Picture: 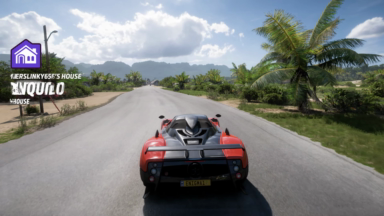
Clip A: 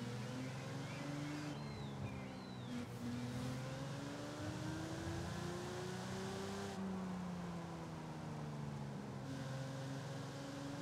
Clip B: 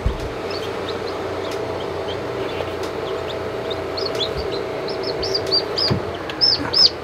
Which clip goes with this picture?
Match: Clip A